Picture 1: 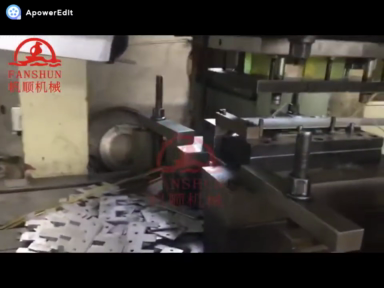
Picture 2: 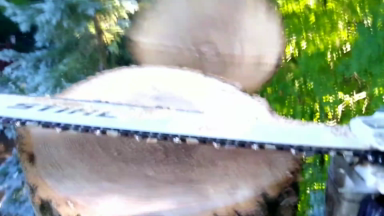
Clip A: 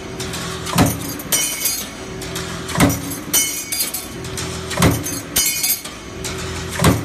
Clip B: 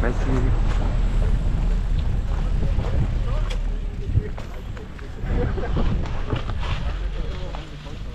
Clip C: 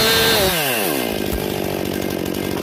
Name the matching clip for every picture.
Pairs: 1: A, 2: C